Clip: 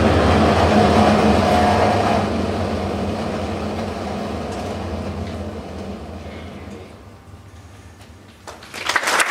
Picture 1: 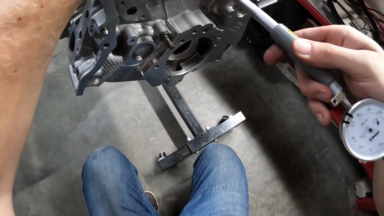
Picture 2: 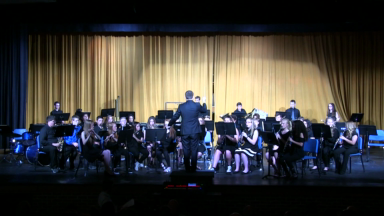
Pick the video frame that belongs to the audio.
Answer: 2